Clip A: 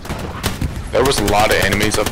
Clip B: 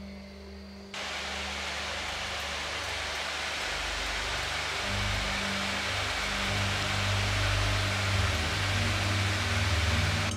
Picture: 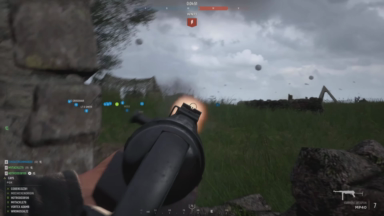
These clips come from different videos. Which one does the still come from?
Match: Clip A